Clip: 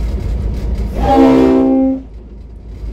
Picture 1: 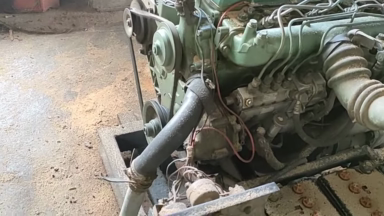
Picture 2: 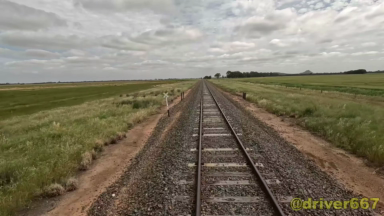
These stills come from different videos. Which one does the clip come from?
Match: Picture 2